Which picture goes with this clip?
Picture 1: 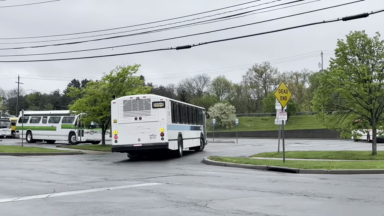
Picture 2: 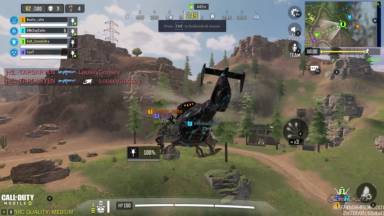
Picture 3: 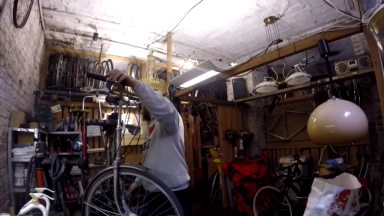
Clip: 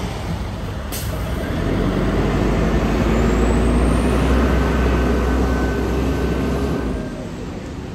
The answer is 1